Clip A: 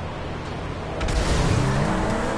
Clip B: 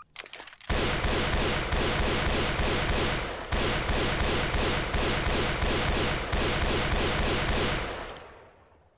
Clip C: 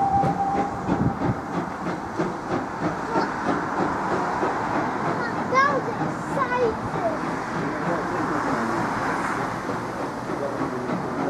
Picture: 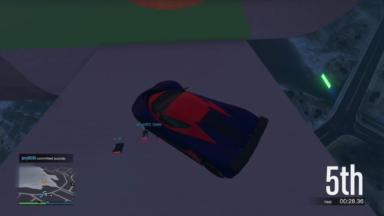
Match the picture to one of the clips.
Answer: A